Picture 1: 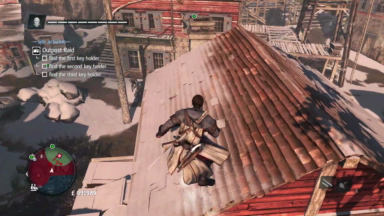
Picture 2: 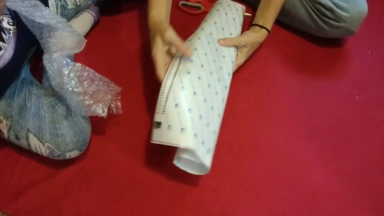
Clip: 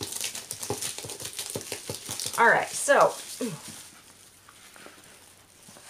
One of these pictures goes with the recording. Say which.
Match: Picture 2